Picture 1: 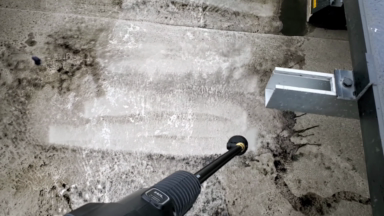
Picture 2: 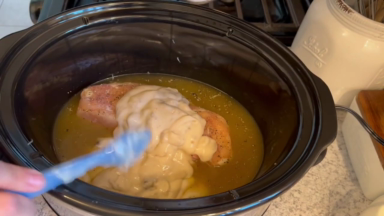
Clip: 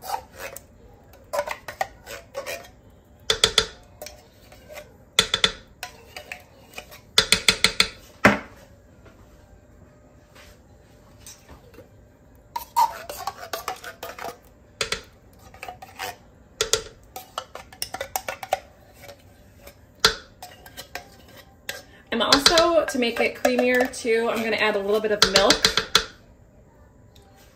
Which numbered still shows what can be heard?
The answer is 2